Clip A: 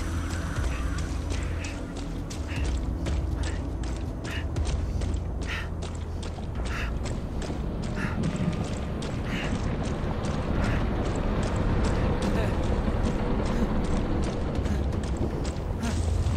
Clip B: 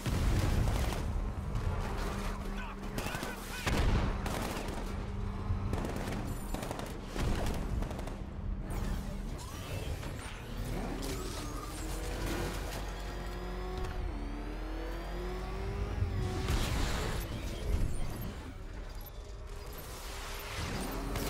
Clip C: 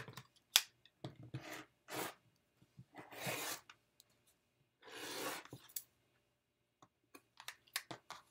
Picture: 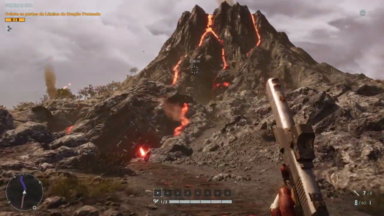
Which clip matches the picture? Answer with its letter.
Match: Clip A